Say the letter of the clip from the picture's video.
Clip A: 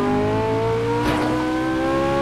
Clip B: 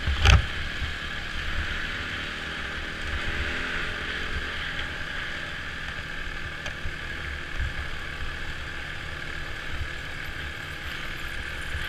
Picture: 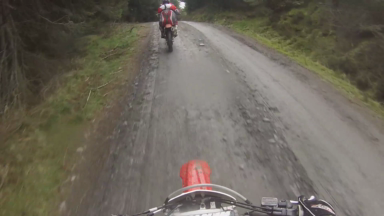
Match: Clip B